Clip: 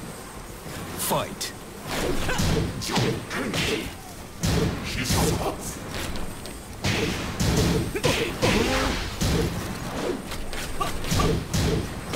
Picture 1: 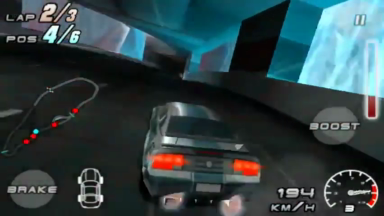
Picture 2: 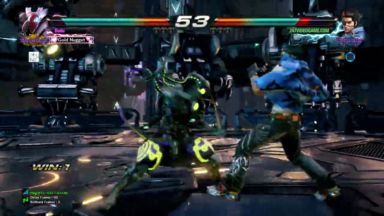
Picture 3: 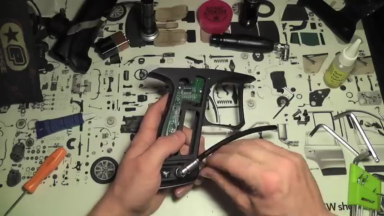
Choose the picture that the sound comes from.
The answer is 2